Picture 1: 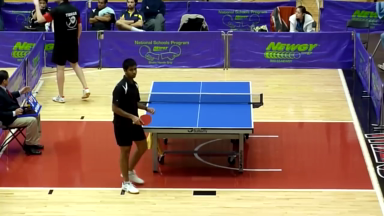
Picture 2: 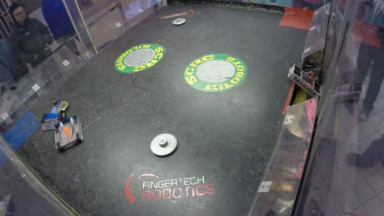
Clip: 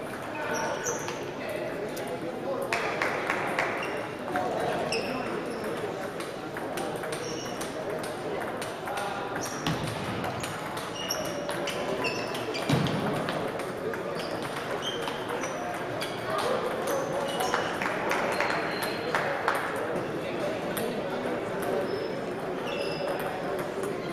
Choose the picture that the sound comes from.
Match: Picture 1